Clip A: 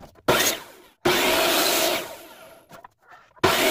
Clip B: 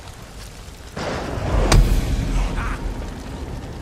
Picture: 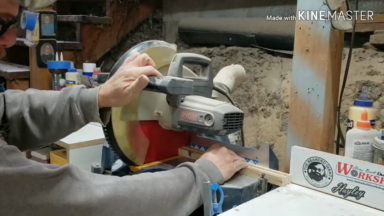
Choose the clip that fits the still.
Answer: A